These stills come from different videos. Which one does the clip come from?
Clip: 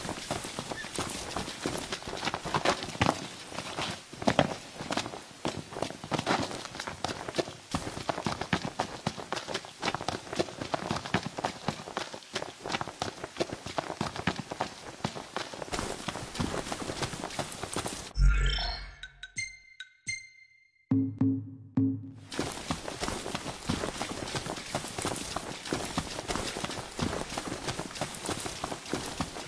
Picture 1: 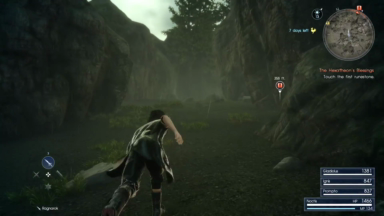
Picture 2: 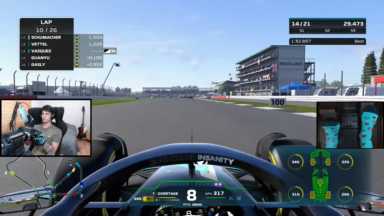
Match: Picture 1